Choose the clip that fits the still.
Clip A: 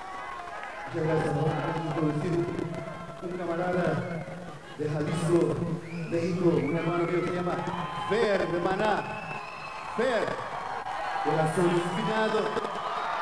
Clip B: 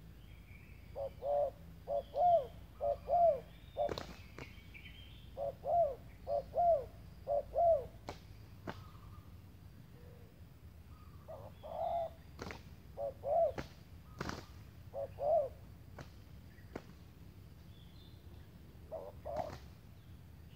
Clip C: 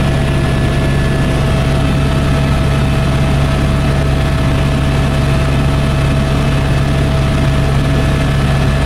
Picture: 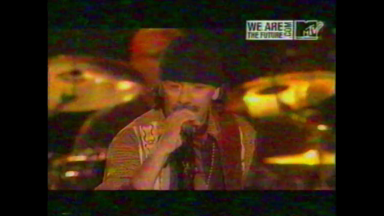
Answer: A